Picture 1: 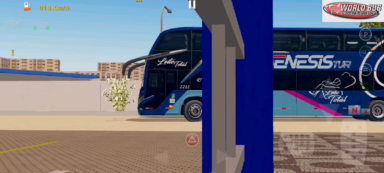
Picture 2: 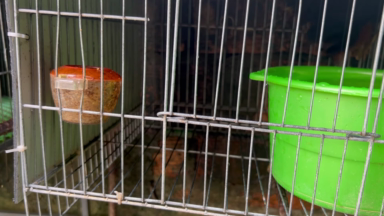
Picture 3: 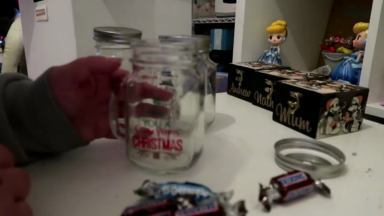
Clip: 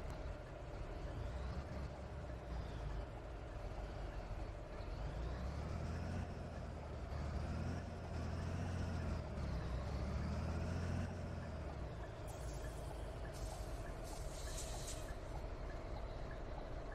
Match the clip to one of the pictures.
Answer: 1